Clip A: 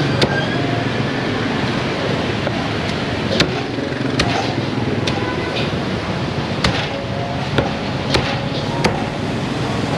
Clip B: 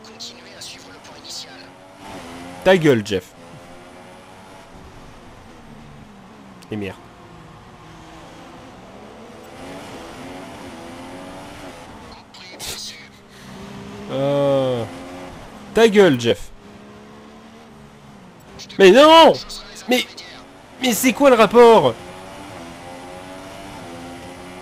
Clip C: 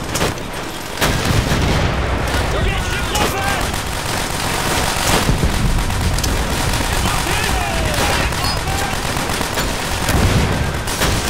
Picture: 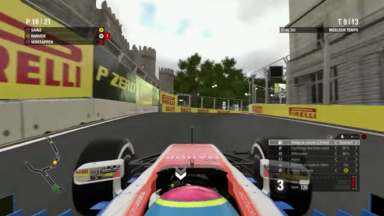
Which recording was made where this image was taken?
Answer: B